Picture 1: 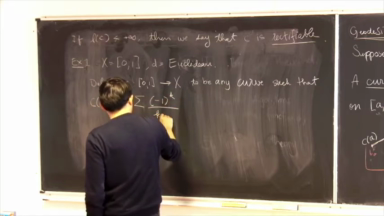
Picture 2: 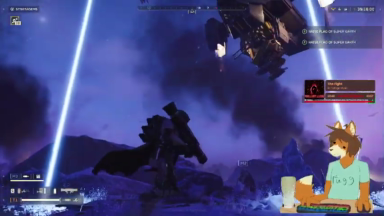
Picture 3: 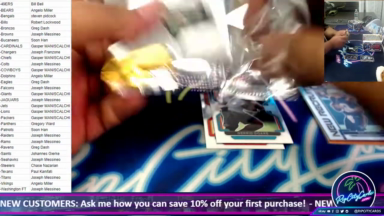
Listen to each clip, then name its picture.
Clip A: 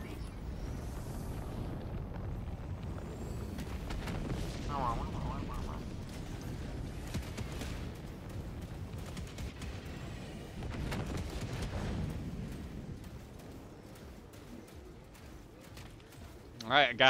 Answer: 2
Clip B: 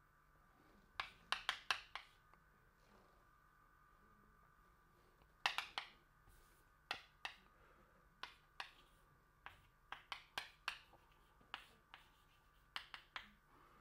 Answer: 1